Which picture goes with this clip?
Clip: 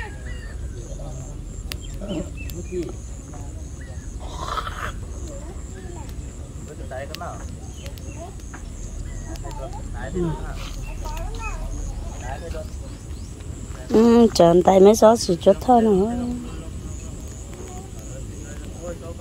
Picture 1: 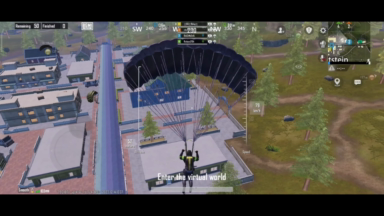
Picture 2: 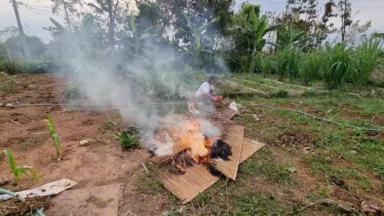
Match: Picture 2